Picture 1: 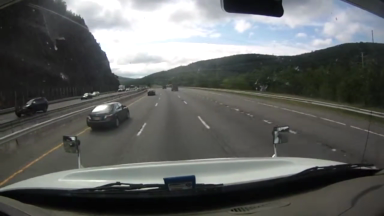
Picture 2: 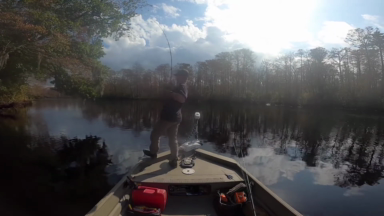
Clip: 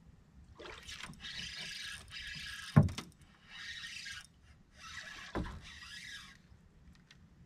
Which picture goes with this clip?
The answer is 2